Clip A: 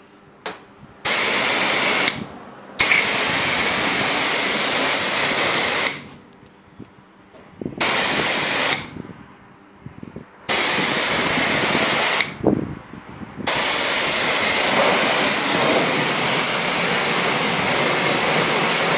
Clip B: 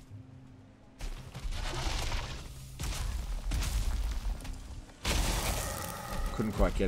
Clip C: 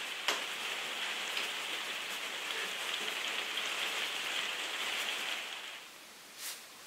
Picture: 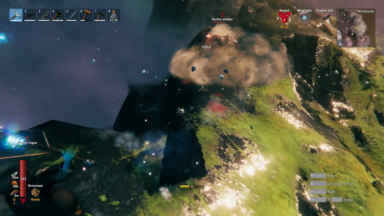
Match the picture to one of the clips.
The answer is B